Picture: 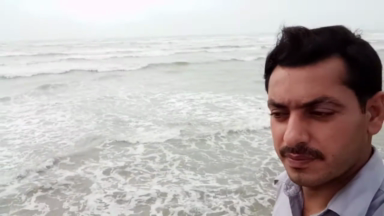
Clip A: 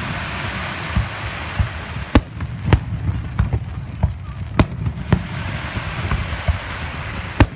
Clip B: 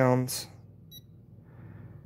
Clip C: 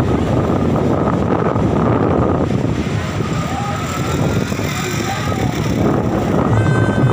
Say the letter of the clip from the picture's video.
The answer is C